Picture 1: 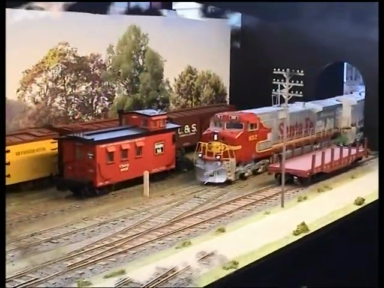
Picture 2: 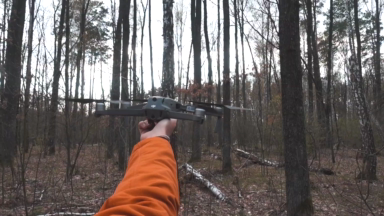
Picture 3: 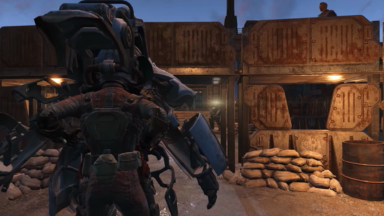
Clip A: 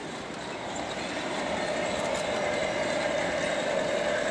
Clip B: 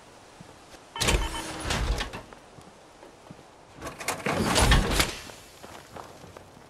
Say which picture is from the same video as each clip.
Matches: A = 1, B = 3